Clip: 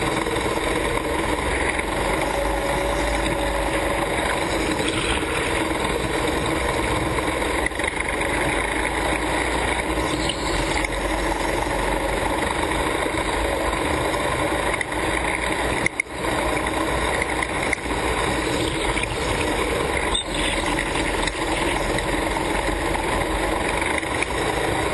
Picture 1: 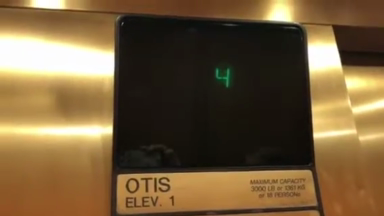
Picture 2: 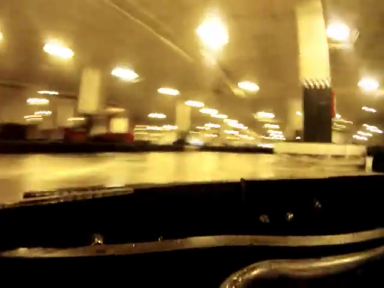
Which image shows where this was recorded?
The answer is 2